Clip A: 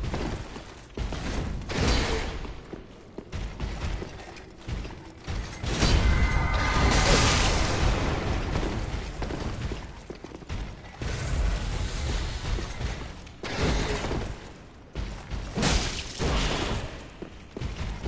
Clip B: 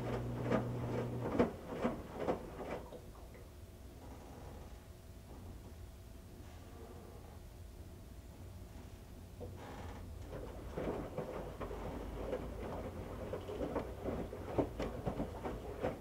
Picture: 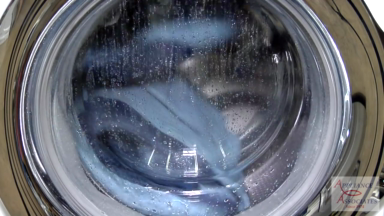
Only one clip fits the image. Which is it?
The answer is B